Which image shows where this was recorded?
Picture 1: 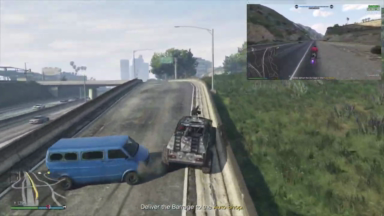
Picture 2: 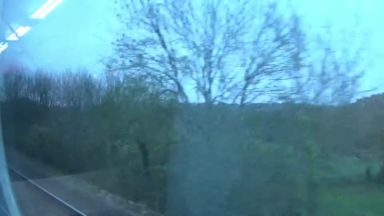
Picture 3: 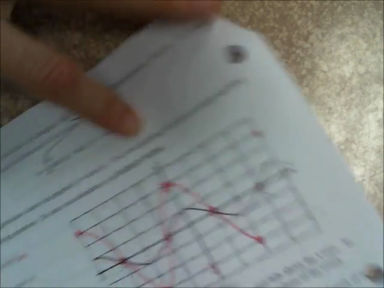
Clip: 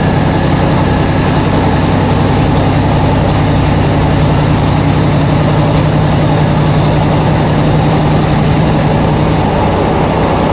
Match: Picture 2